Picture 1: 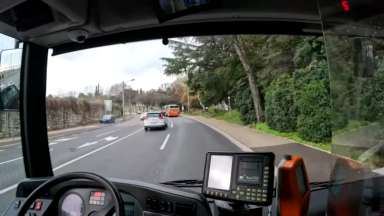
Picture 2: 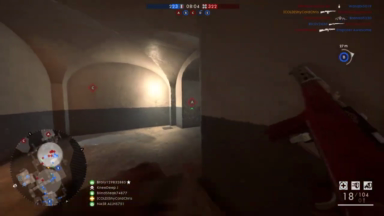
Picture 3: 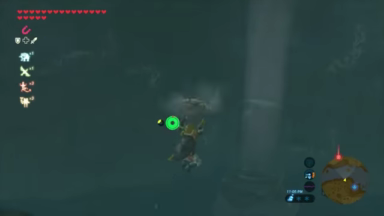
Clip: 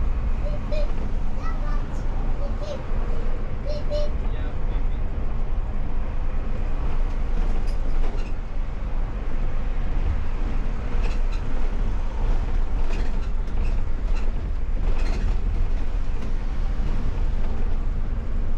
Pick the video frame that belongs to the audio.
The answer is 1